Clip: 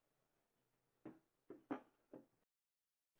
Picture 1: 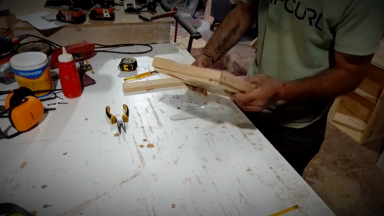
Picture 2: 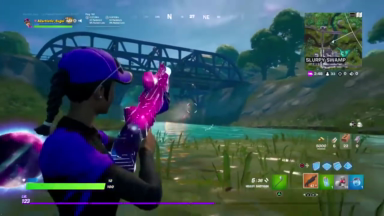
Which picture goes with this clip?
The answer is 1